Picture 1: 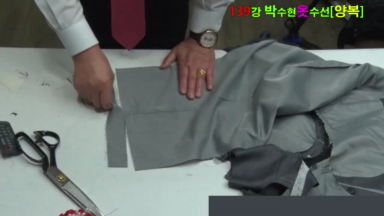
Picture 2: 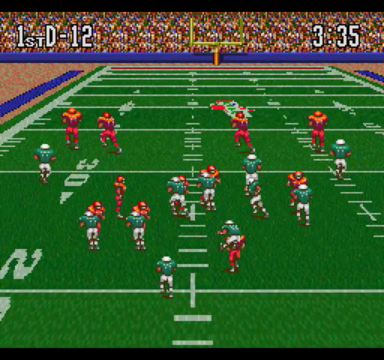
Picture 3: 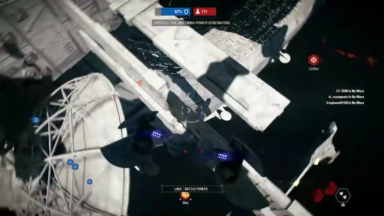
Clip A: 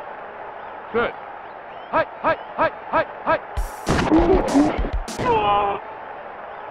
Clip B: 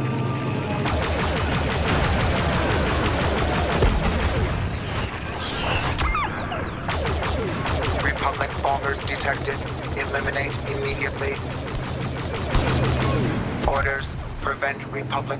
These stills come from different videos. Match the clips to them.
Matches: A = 2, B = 3